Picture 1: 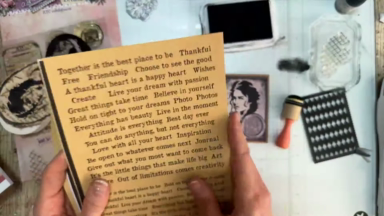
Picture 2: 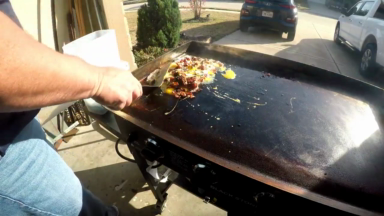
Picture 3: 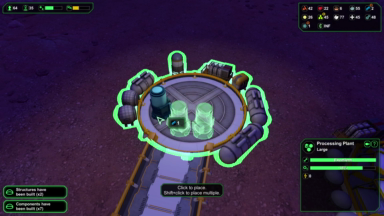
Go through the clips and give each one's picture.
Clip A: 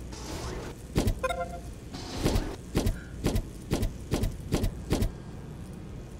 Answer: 3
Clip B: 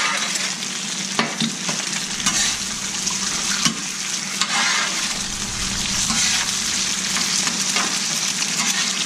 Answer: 2